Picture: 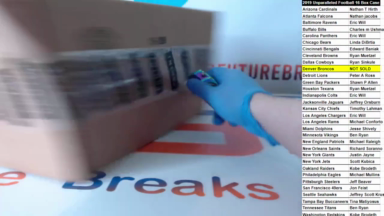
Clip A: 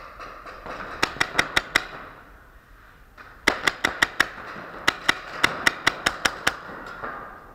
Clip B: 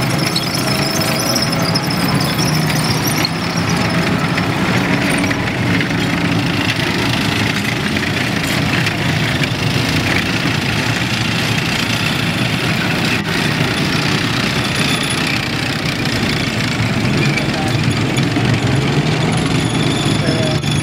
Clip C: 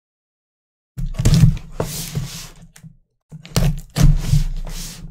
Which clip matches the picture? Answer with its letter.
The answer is C